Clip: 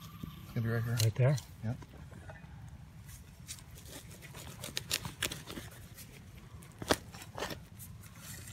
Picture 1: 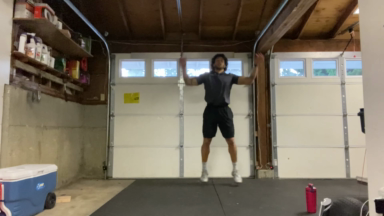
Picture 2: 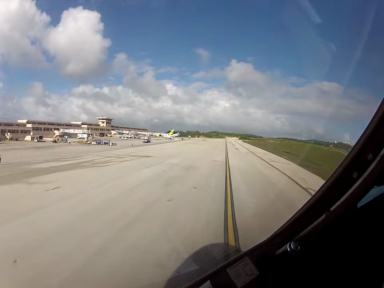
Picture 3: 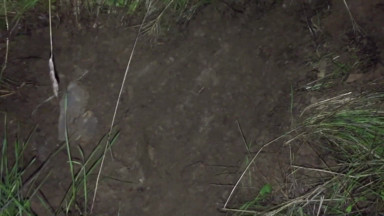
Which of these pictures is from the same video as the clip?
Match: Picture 3